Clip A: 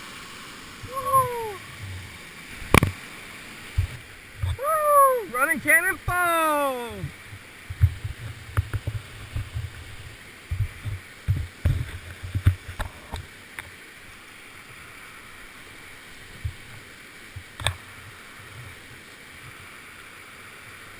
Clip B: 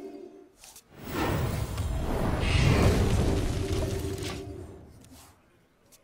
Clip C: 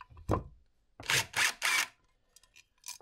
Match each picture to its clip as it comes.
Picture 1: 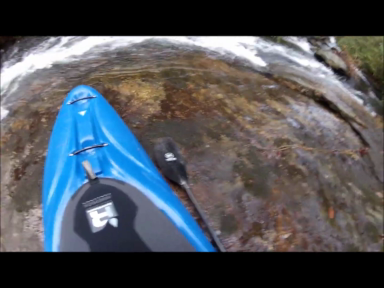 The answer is A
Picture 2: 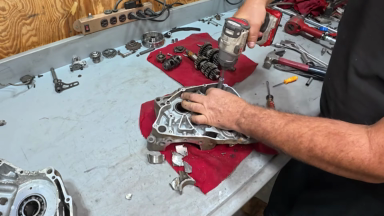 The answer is C